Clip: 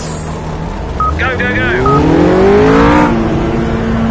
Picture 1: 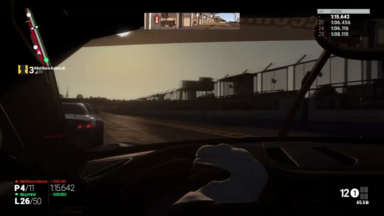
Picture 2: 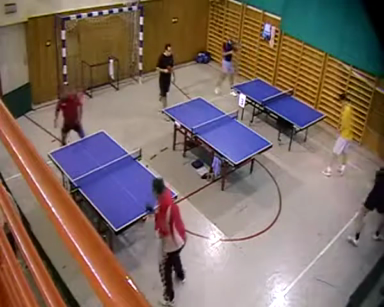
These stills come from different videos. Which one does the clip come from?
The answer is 1